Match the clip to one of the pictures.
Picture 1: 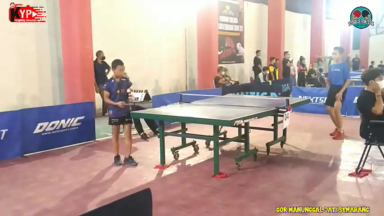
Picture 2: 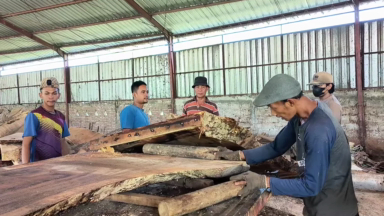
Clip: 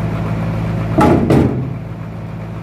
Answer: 2